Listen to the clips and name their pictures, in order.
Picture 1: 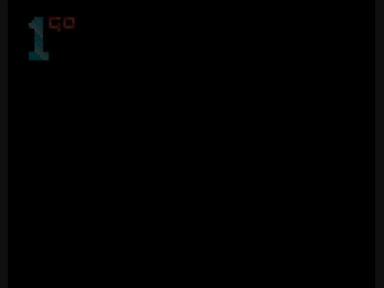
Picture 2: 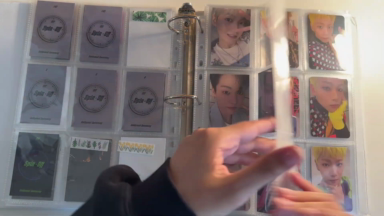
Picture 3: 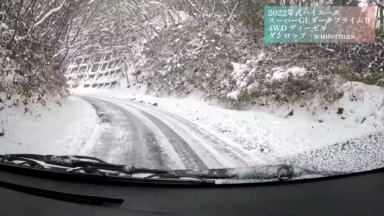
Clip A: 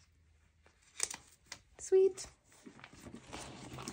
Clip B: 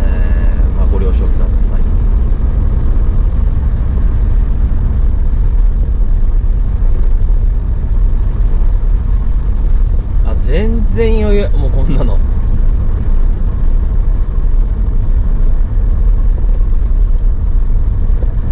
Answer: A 2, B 3